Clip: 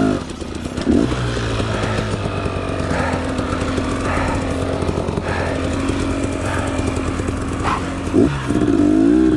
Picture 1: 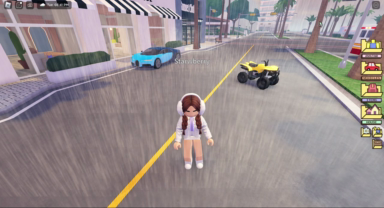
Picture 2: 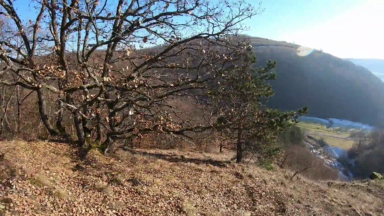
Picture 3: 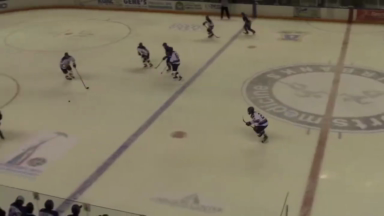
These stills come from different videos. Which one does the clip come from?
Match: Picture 2